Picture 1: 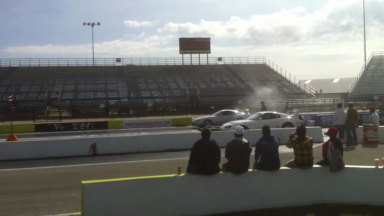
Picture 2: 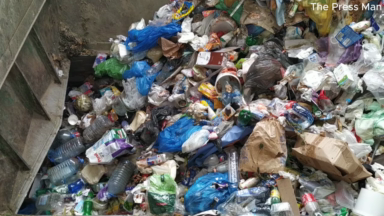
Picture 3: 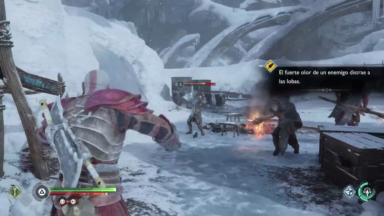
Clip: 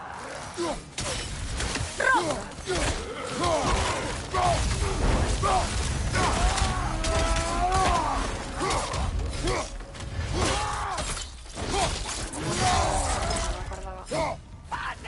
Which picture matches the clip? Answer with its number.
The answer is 3